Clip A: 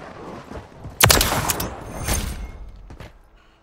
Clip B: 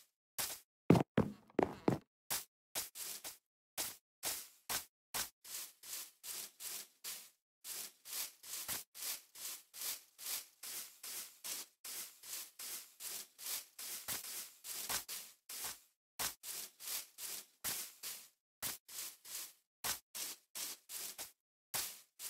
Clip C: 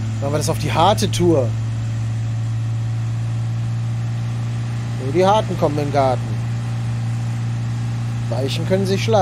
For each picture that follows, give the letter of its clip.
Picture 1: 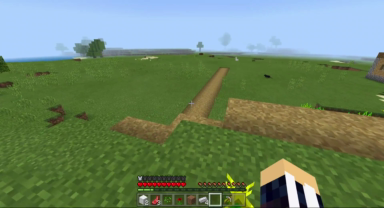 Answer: B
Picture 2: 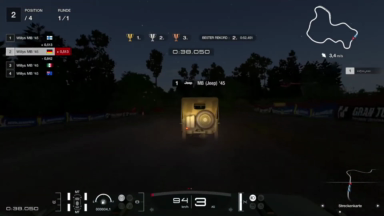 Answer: C